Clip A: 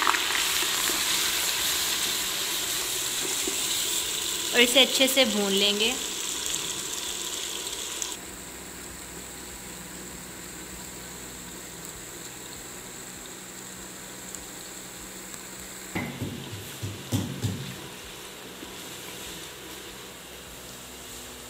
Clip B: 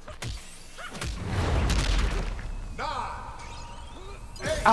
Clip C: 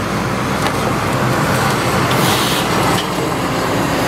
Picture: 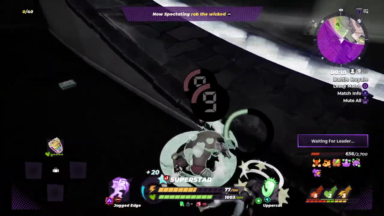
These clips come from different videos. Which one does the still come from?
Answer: B